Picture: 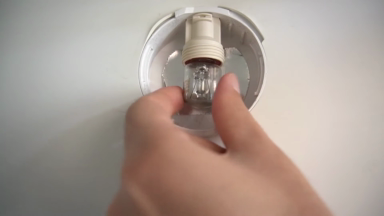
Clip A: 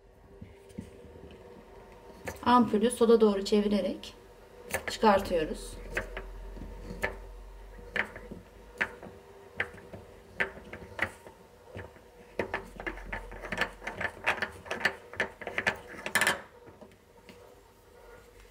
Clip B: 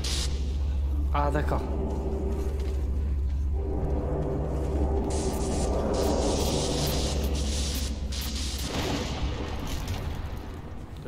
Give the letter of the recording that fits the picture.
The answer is A